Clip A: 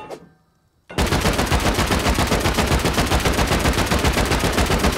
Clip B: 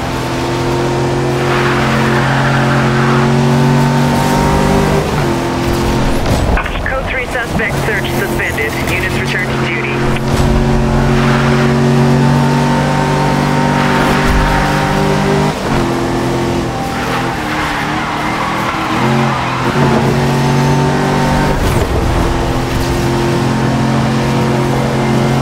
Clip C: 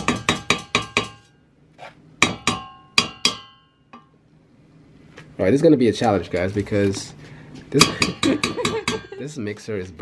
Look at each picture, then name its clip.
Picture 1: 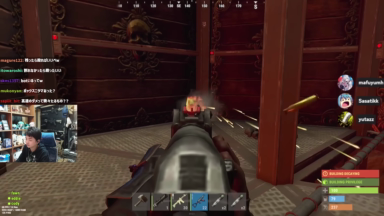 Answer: A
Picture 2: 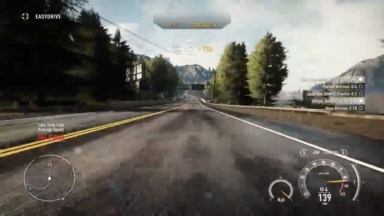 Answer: B